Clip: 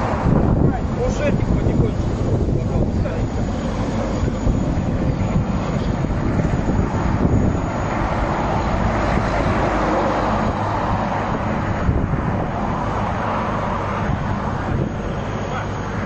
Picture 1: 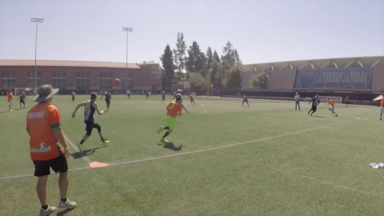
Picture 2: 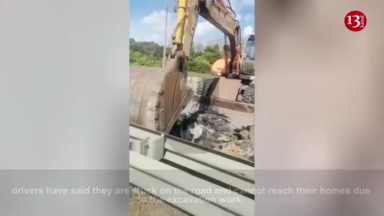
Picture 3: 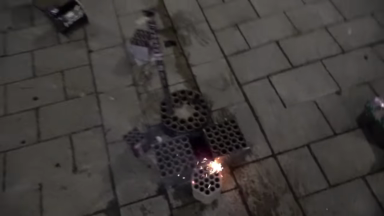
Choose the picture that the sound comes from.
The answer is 2